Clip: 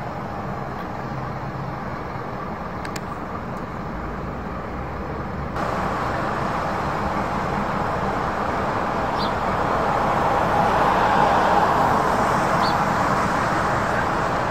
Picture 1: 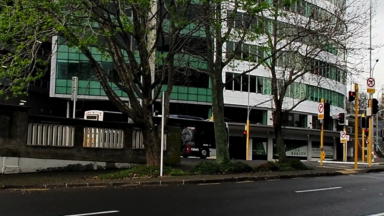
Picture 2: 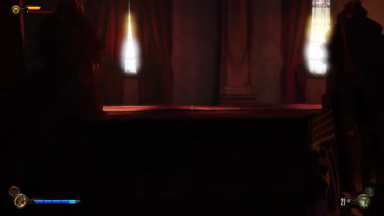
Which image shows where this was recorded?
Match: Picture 1